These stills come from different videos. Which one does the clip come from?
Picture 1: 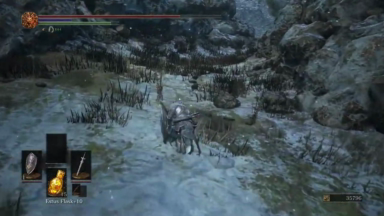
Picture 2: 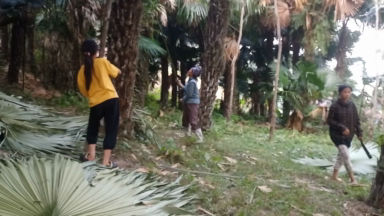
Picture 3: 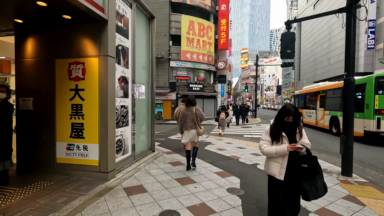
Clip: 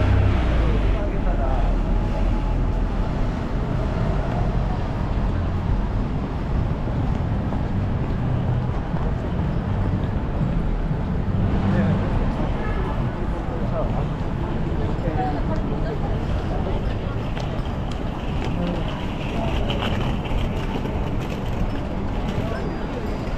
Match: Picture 3